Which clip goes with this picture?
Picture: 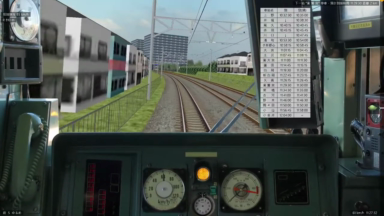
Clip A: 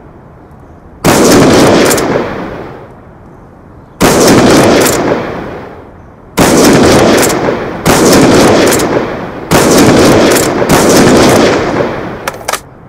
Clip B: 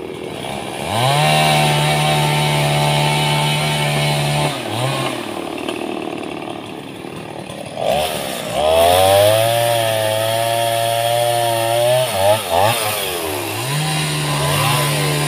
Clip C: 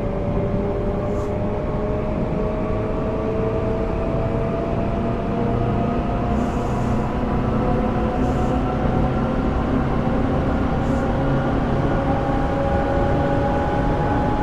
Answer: C